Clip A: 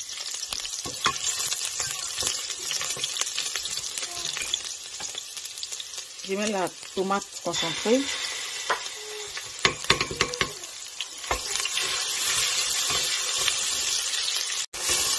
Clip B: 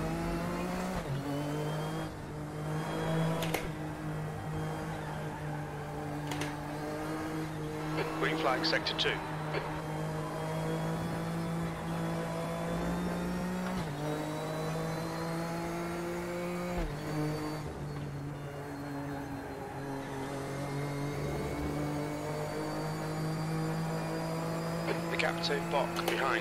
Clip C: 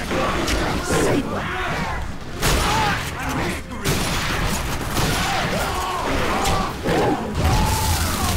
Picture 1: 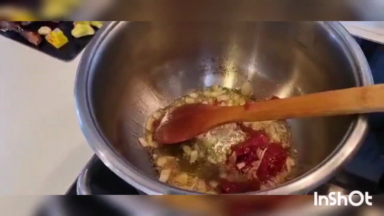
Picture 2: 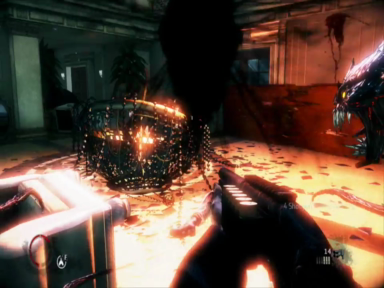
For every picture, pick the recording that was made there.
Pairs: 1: A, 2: C